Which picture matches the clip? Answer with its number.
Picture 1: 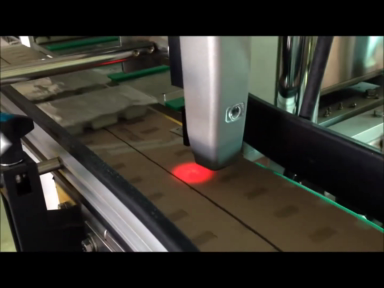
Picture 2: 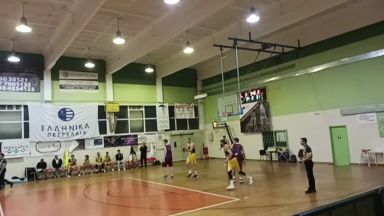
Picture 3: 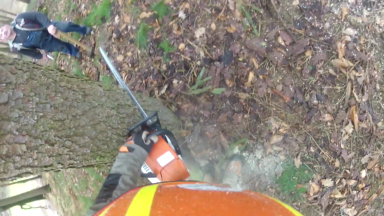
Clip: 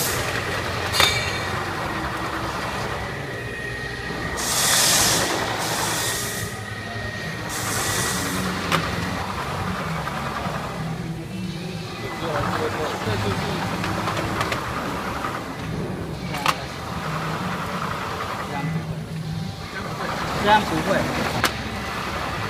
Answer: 1